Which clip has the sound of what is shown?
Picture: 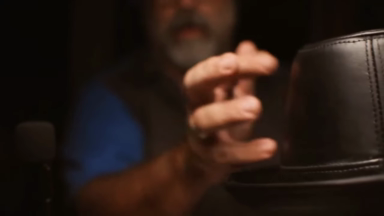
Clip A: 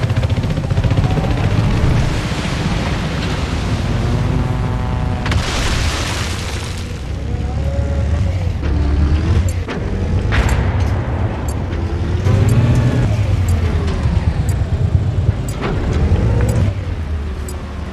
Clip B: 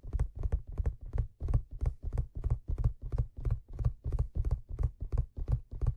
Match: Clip B